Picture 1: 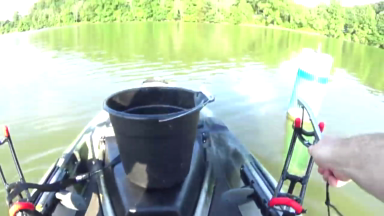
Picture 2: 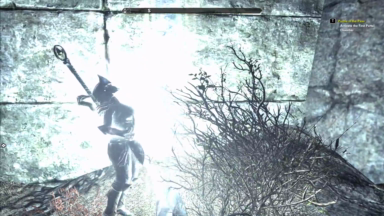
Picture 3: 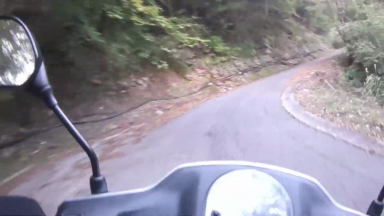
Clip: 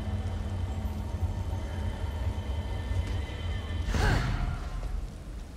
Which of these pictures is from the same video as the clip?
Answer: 2